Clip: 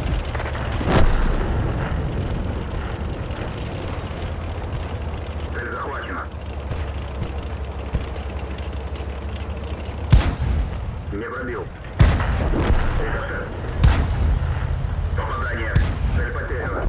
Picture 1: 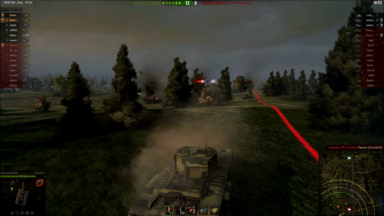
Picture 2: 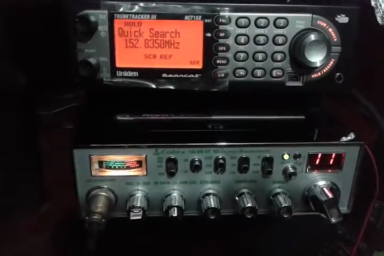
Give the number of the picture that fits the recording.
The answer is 1